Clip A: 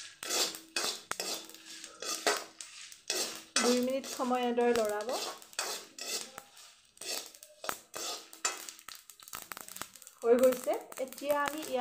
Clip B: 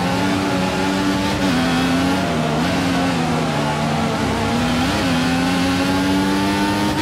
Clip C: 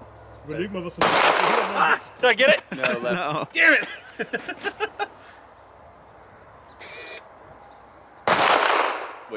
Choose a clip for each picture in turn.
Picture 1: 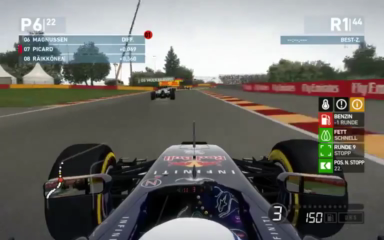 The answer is B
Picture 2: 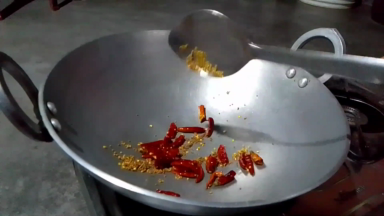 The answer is A